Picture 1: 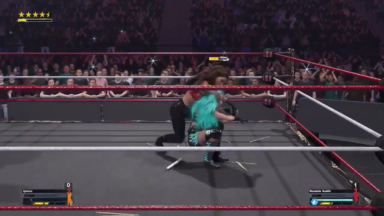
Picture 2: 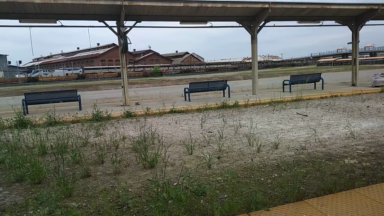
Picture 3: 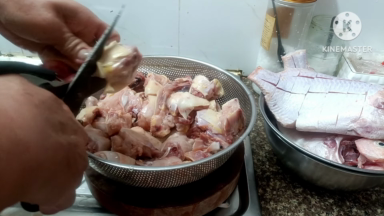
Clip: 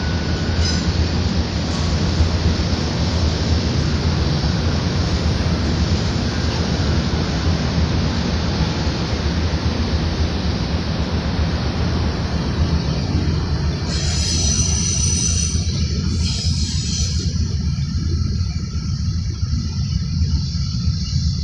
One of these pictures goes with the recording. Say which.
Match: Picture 2